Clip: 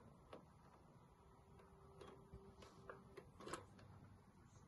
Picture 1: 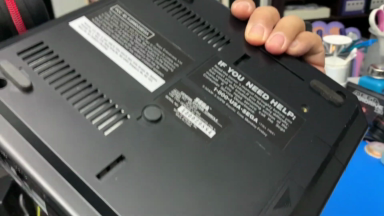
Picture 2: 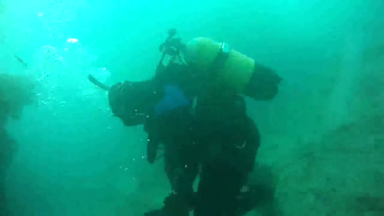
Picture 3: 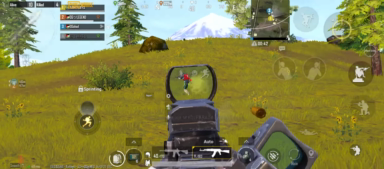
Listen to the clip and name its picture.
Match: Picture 1